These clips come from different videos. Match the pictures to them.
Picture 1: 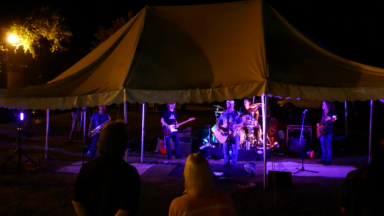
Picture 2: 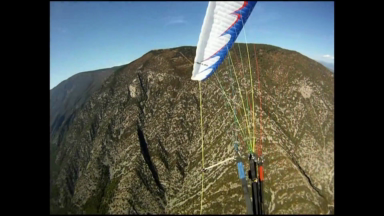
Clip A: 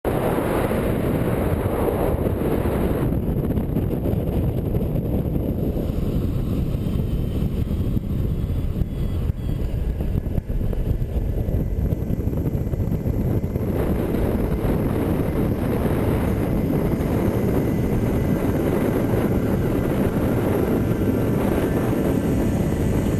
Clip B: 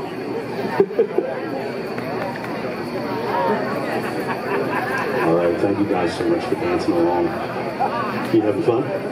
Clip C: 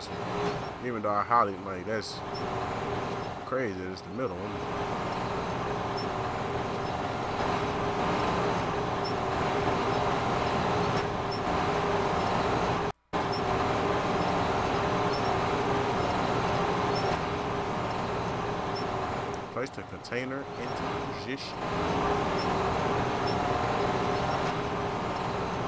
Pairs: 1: B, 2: A